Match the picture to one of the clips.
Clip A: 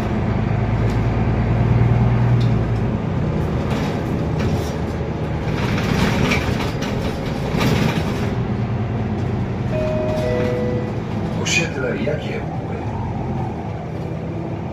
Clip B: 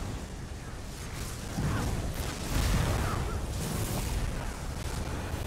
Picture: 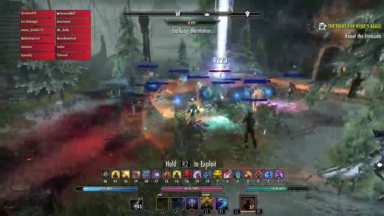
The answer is B